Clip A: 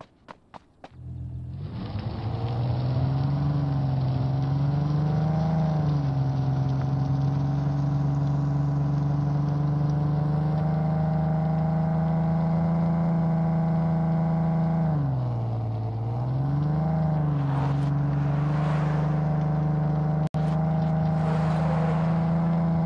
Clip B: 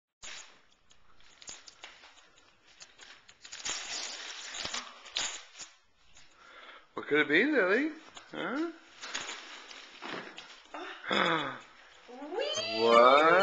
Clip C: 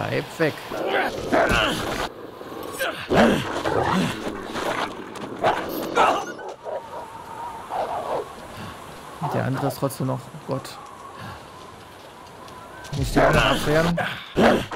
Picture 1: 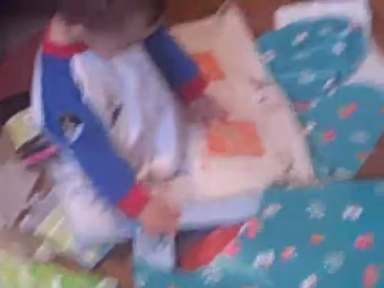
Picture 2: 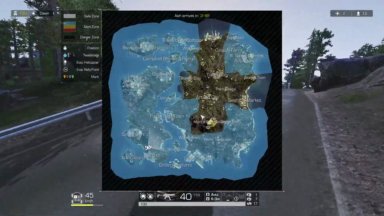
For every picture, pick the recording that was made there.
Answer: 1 B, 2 A